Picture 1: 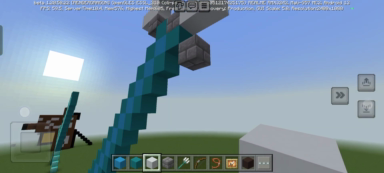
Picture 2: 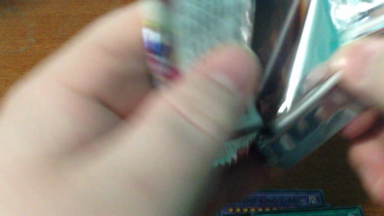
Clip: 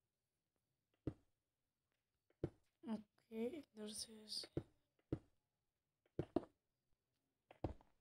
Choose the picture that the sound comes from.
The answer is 1